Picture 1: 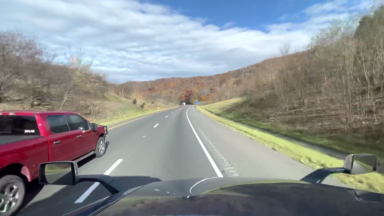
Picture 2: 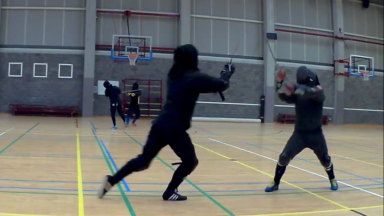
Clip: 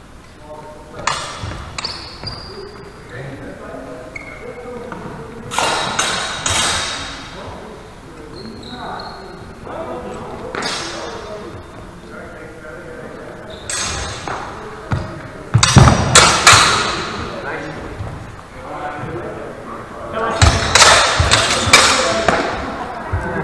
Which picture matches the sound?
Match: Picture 2